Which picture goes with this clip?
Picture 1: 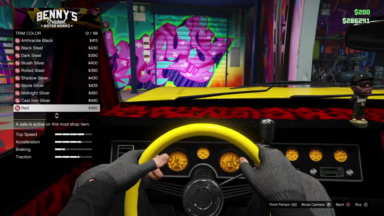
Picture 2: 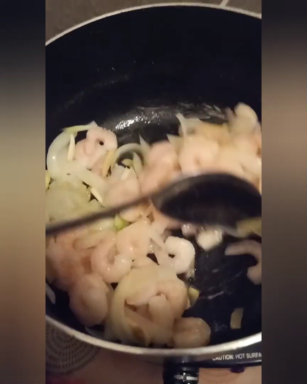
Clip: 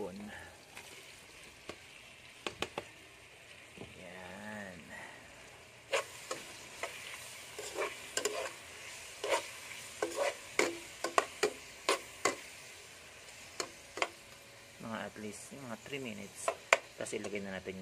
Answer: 2